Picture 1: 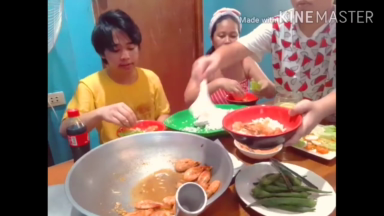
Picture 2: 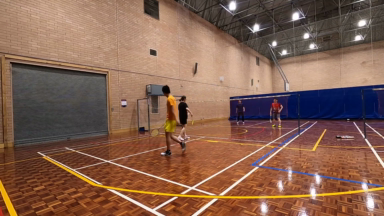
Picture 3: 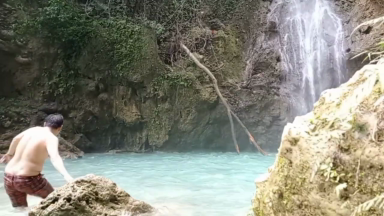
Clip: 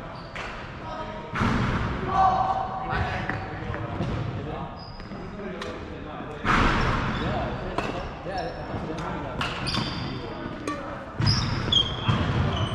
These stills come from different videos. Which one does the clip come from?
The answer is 2